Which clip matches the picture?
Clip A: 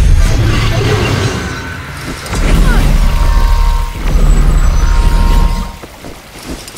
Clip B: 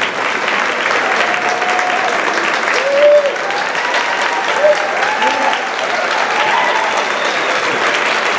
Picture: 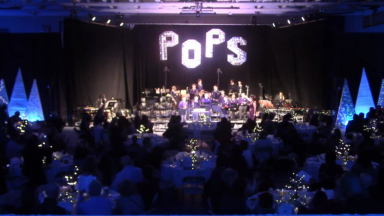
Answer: B